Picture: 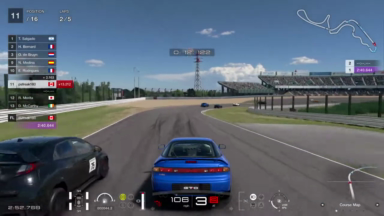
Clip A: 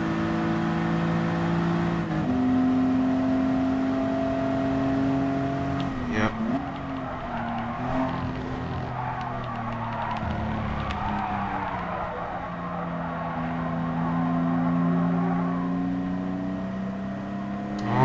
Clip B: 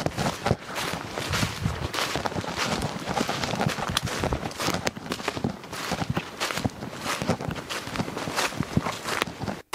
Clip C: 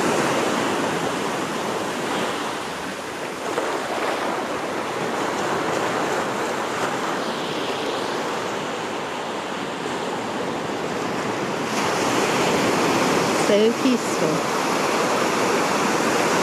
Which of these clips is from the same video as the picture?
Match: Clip A